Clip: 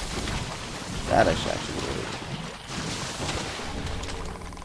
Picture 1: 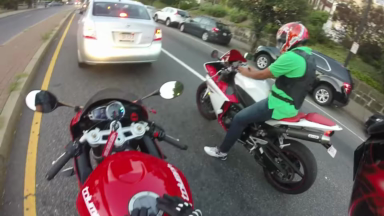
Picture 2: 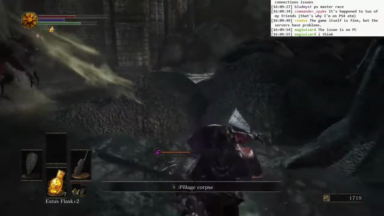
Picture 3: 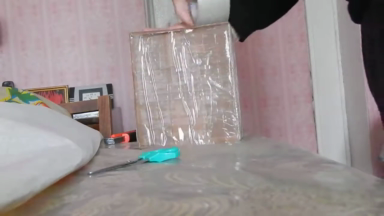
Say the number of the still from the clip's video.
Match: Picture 2